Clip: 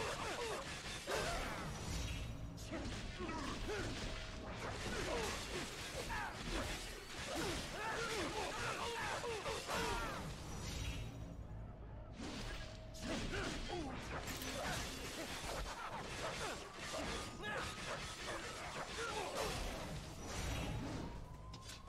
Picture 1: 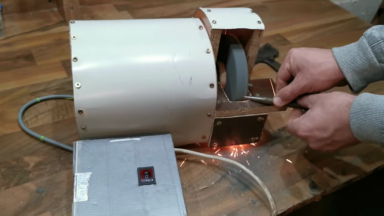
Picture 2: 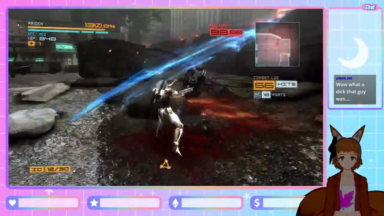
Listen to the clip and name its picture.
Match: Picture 2